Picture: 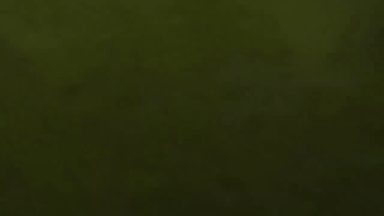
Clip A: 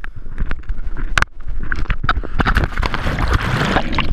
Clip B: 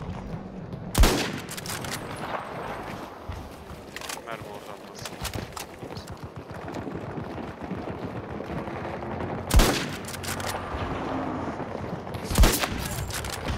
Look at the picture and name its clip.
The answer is A